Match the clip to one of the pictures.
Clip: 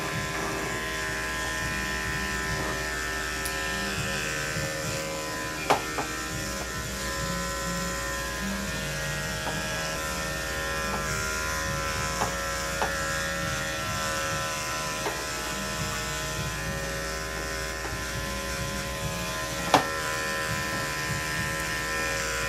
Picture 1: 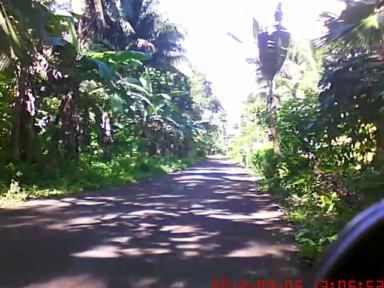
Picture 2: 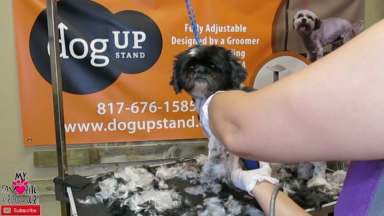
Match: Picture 2